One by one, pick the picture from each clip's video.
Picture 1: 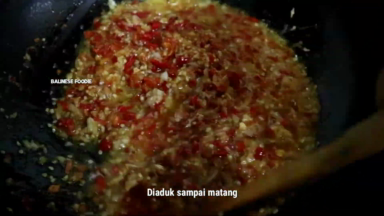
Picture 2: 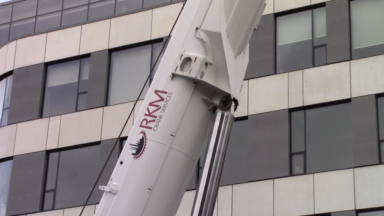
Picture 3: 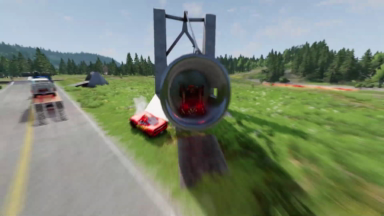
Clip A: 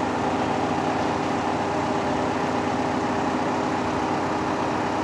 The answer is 2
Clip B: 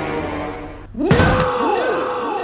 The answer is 3